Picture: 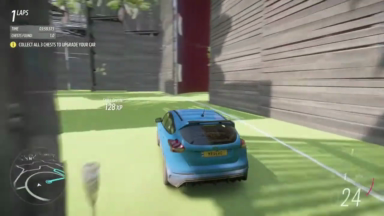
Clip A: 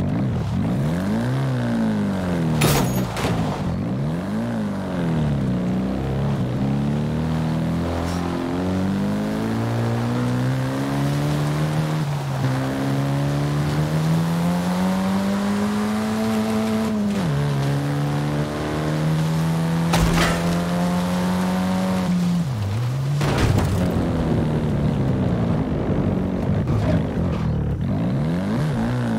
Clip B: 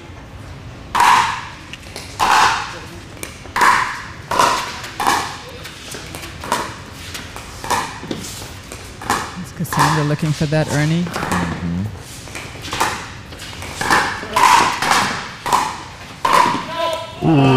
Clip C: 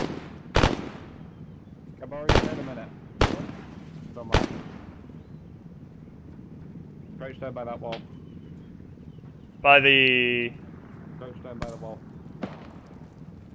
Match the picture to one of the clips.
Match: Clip A